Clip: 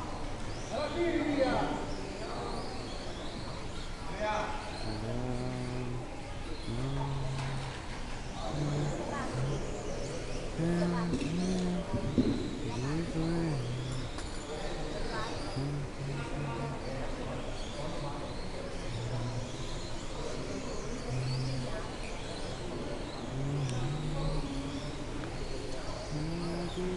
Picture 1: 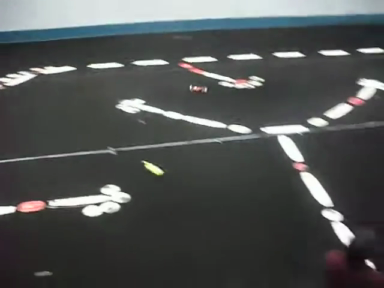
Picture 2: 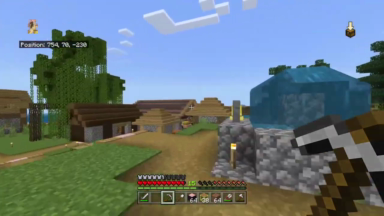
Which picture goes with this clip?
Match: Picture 1